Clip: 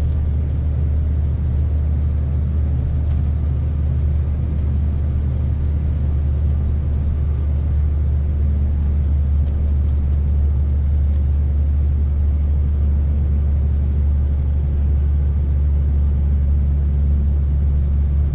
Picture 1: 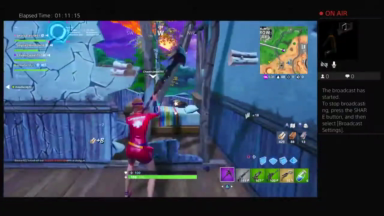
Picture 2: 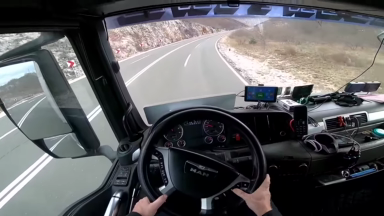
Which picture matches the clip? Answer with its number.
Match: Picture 2